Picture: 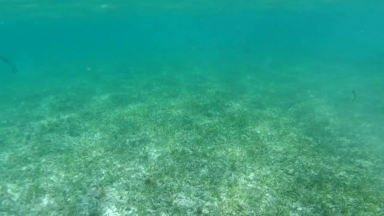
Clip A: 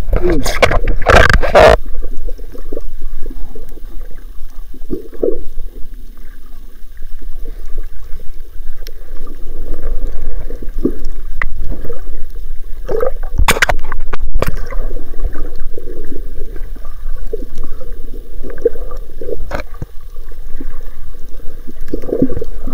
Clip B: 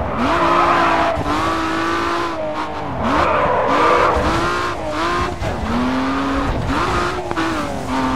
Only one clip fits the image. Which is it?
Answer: A